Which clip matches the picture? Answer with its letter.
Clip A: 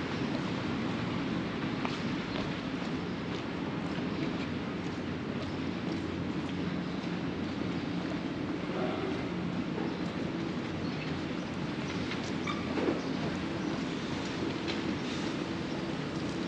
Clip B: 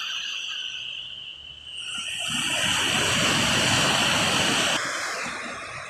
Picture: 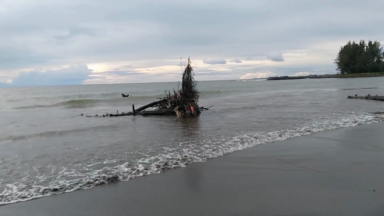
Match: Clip B